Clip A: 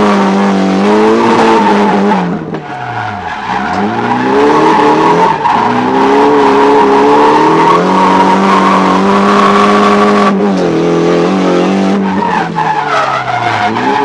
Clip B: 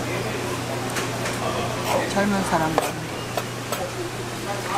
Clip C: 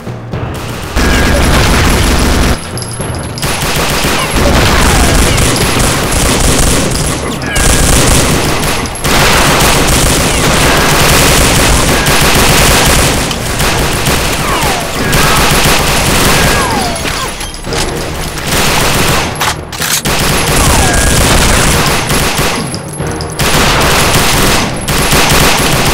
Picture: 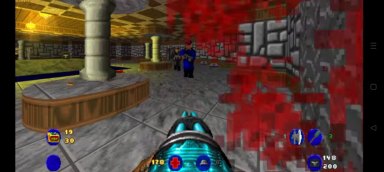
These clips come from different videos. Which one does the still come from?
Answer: C